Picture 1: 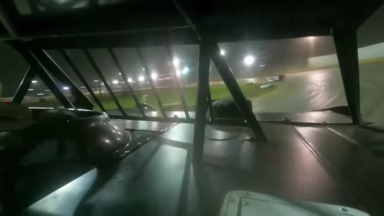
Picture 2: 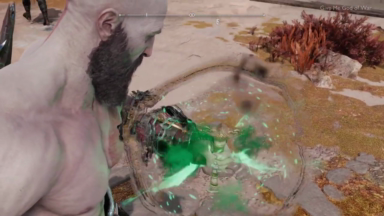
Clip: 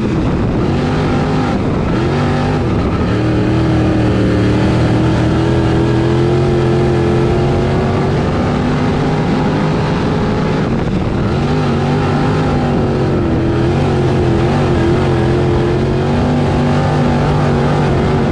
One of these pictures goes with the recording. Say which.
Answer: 1